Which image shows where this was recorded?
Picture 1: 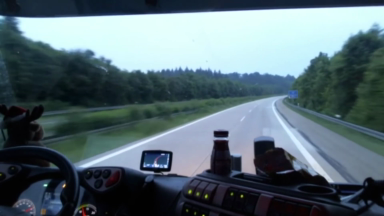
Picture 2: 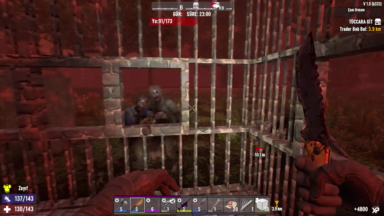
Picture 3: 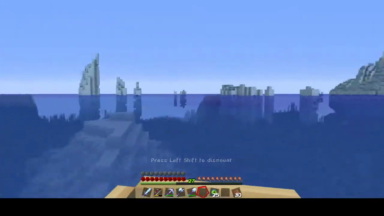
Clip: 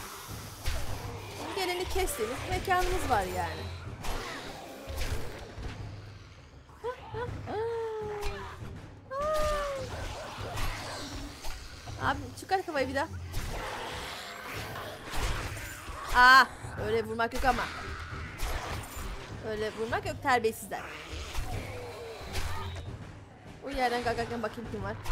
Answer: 2